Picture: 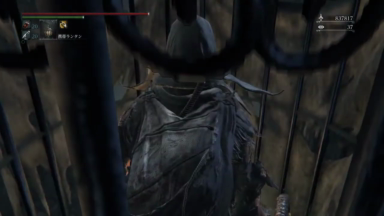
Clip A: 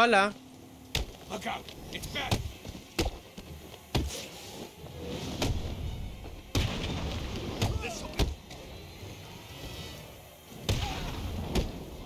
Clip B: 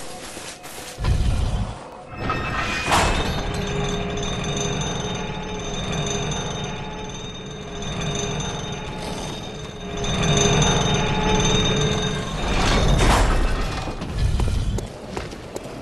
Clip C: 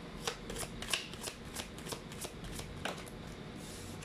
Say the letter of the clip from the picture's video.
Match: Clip B